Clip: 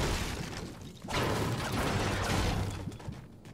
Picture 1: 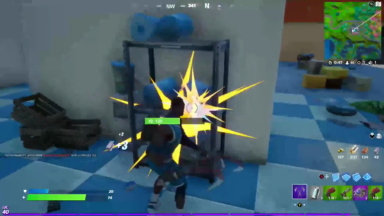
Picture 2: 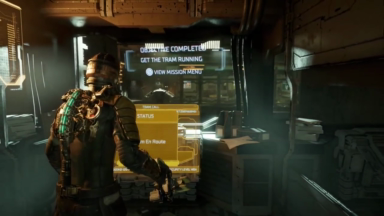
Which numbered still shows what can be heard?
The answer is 1